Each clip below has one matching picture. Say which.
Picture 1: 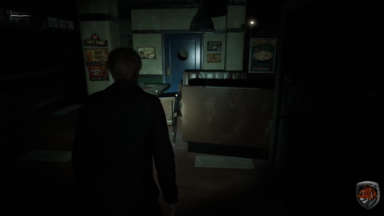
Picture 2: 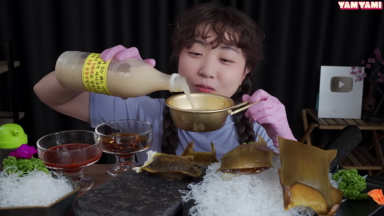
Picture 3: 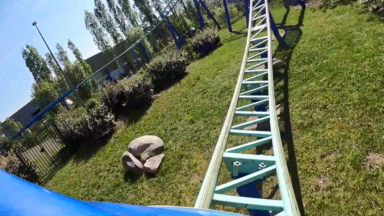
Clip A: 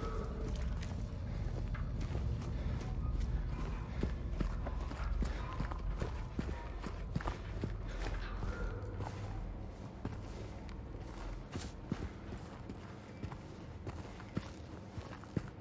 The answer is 1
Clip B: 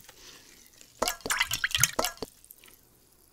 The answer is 2